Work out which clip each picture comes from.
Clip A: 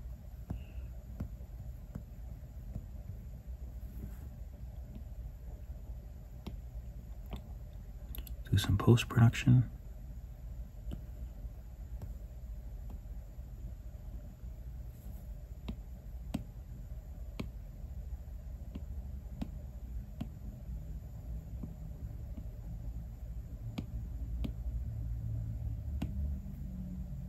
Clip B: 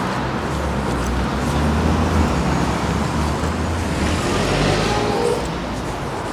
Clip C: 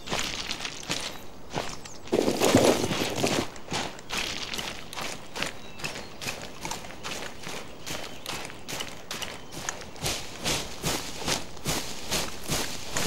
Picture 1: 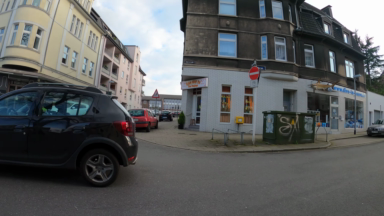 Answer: B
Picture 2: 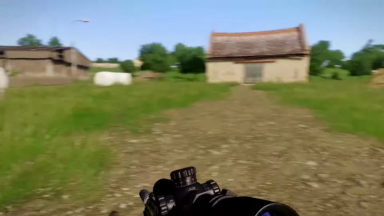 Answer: C